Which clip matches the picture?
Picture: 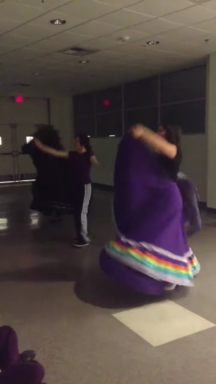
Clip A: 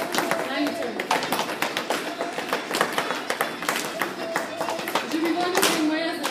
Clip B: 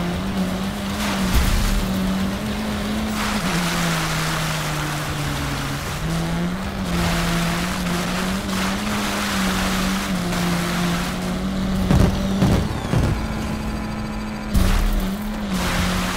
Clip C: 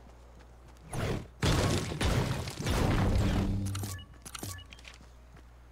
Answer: A